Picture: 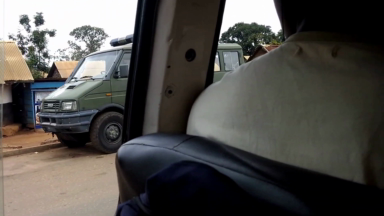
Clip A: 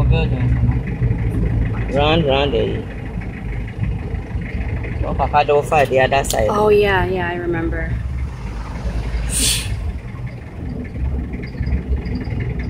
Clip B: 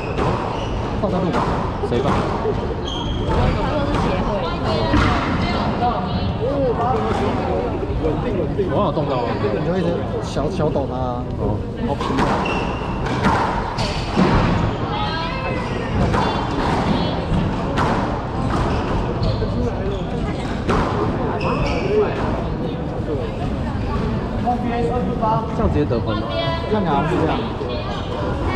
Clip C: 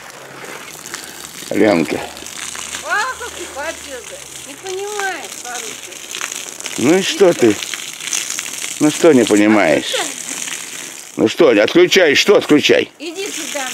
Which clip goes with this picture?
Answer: A